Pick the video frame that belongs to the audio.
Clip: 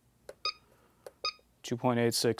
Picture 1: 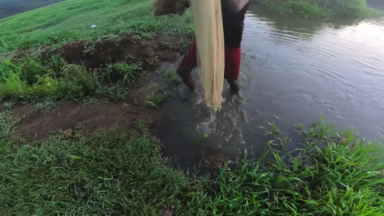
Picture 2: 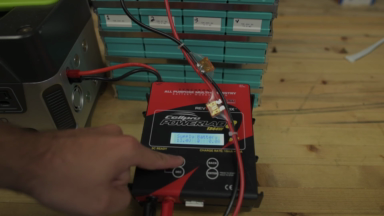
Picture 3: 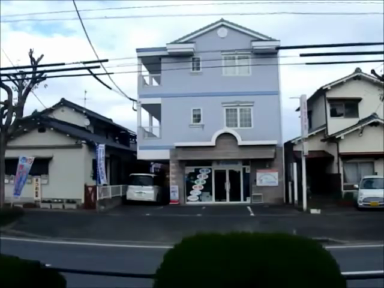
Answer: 2